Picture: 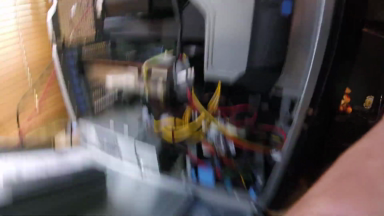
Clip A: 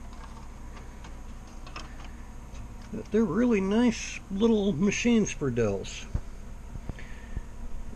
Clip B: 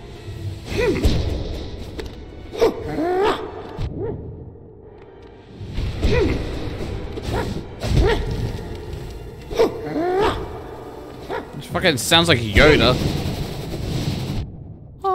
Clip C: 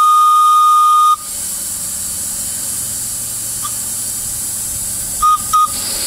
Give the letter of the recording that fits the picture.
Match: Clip A